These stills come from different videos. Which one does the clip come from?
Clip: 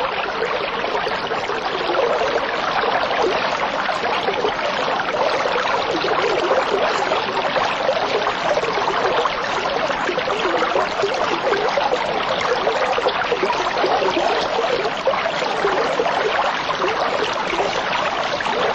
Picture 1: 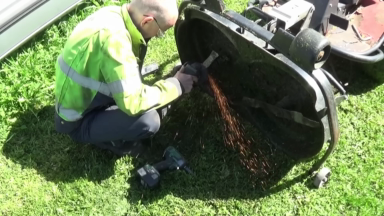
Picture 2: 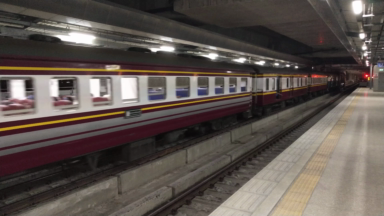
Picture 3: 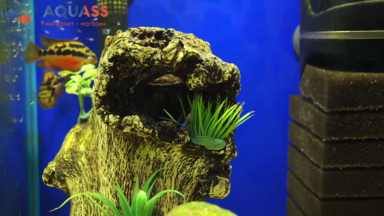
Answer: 3